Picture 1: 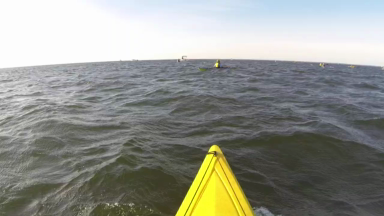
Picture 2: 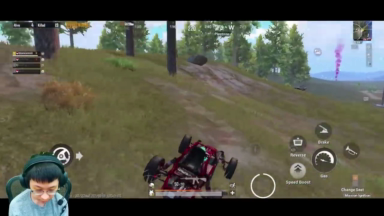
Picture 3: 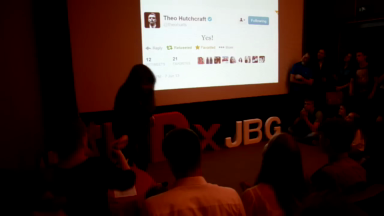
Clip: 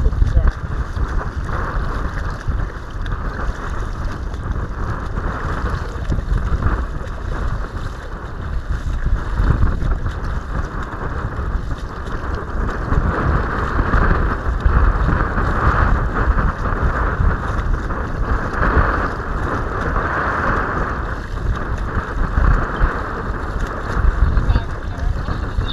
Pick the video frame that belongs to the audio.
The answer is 1